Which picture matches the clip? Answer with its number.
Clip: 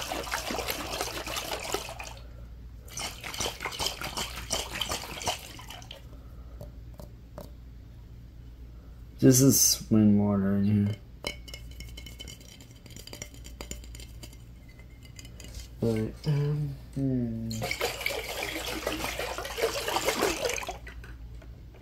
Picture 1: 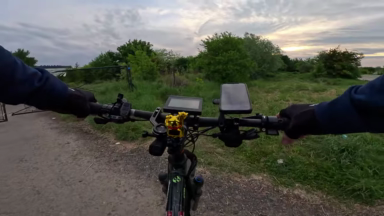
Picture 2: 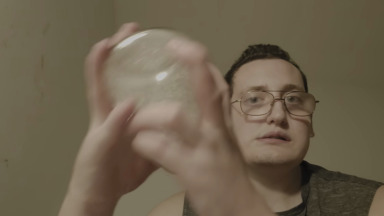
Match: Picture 2